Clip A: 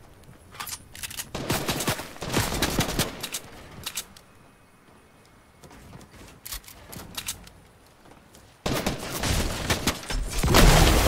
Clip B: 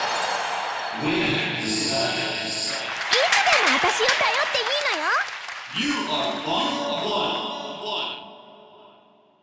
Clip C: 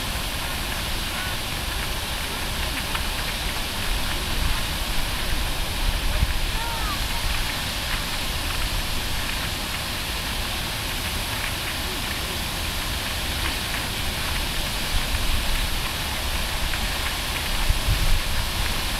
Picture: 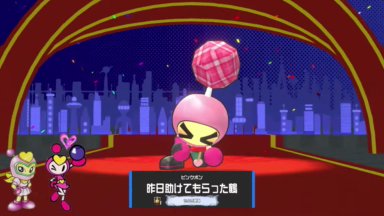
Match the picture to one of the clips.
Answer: B